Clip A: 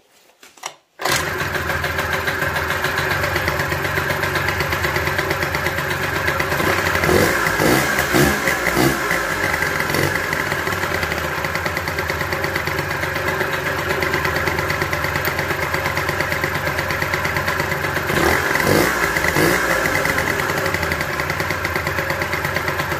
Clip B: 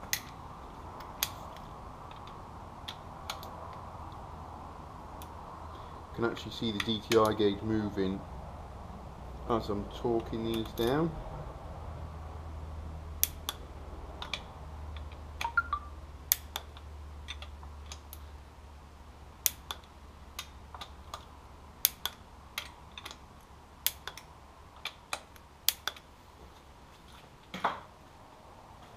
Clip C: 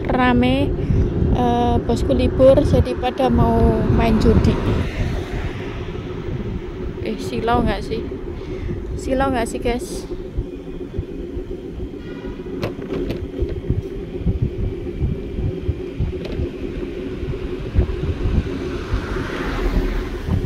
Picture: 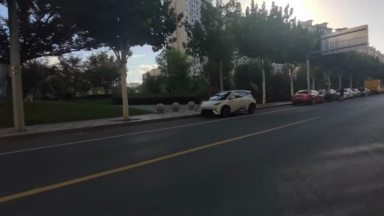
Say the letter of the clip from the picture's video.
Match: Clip C